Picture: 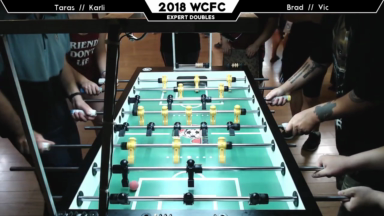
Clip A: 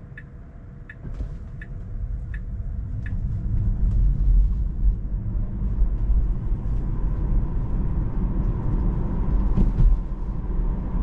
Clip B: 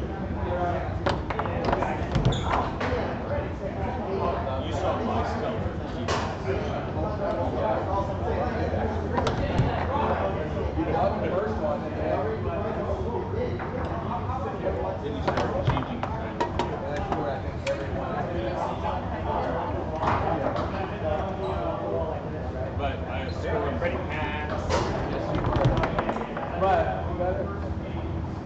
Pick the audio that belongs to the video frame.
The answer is B